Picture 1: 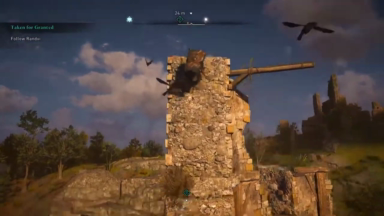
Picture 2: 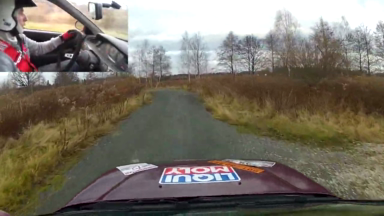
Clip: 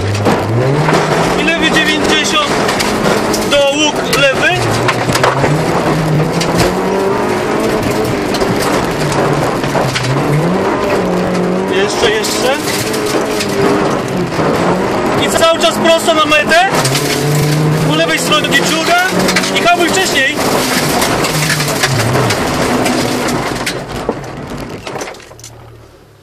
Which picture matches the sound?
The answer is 2